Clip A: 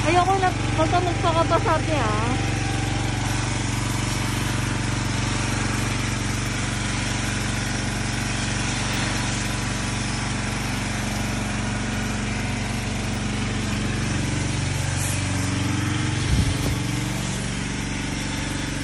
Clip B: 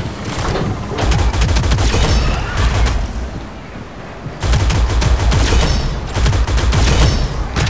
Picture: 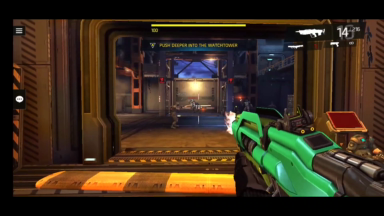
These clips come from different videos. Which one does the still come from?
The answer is B